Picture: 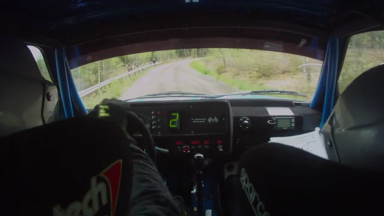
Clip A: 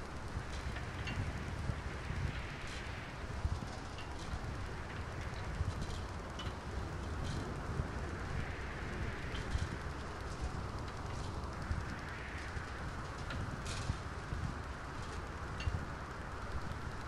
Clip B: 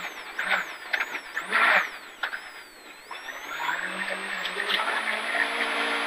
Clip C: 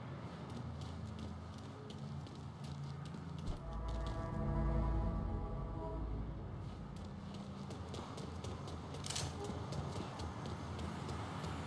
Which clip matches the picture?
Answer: B